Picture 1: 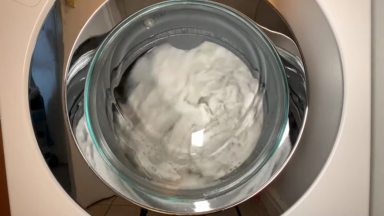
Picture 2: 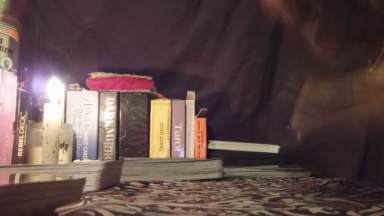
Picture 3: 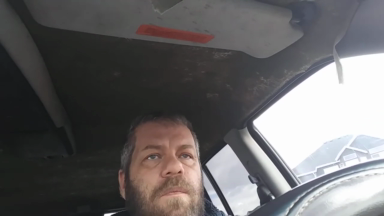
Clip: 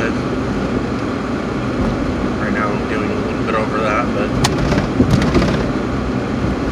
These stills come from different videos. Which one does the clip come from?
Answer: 3